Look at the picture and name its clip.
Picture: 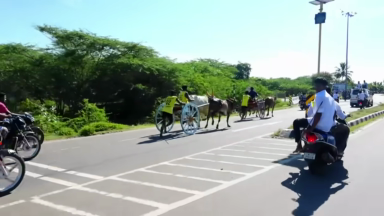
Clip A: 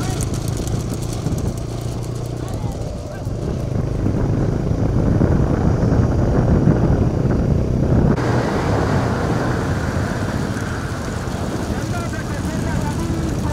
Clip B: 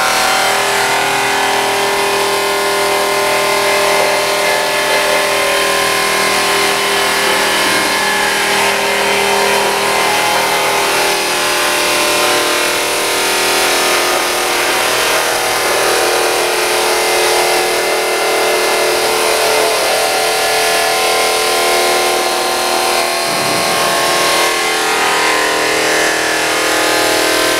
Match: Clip A